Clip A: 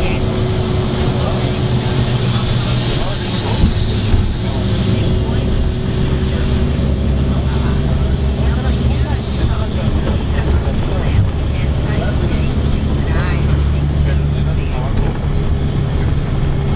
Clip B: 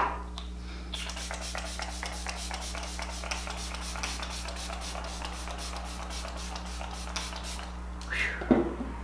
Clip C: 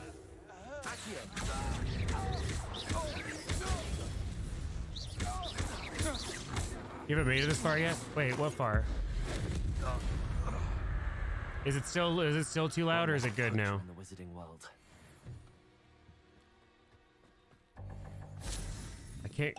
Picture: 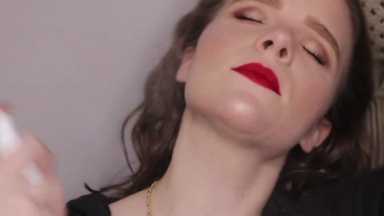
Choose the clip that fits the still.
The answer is B